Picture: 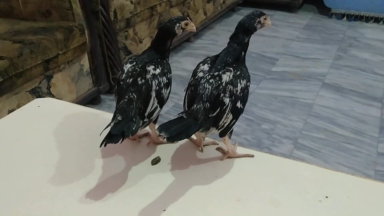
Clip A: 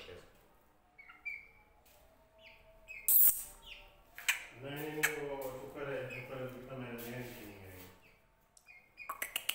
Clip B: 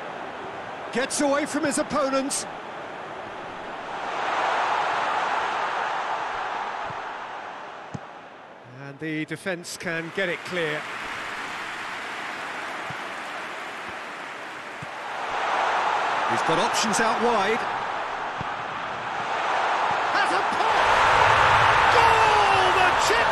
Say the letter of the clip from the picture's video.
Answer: A